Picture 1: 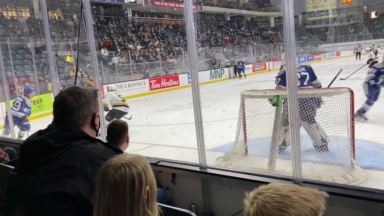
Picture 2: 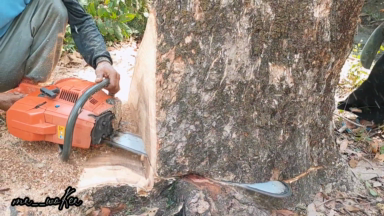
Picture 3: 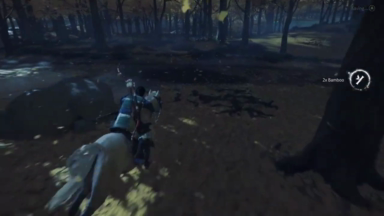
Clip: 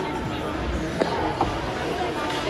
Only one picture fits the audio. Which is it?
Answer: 1